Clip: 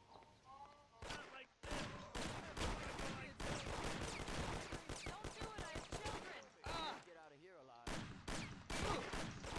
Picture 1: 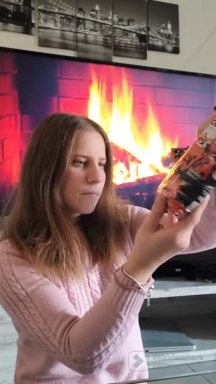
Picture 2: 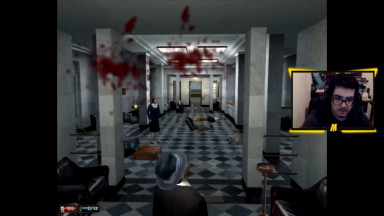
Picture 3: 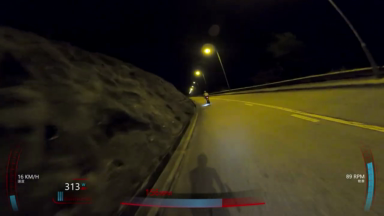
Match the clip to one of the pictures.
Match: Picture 2